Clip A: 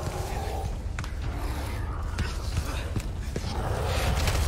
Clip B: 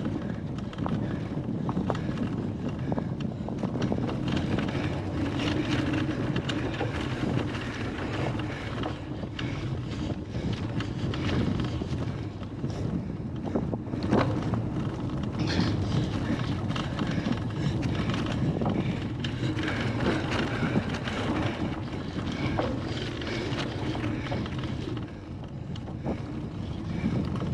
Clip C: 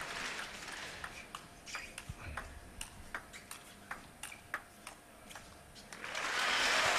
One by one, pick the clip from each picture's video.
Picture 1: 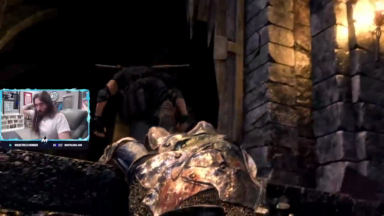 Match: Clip A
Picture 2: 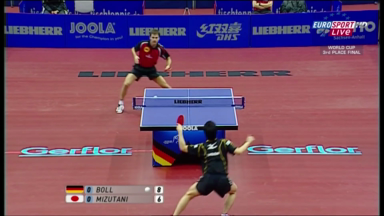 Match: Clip C